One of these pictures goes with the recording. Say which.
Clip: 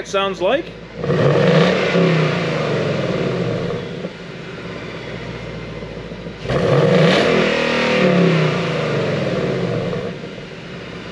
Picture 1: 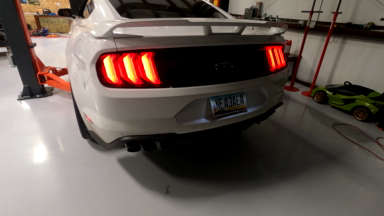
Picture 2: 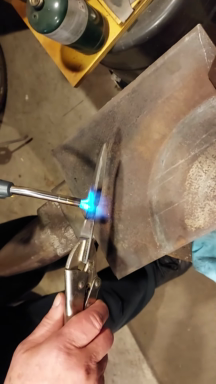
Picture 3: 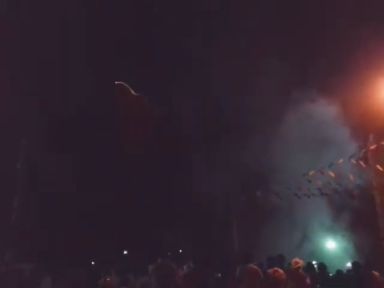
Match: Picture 1